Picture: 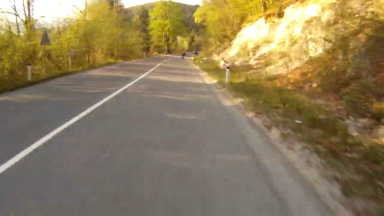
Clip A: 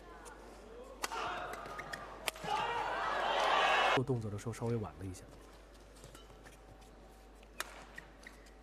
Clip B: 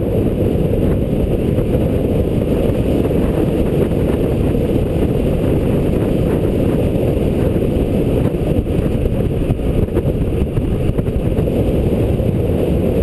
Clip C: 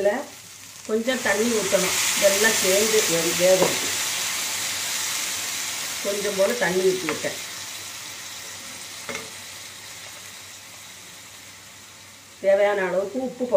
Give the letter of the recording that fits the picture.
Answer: B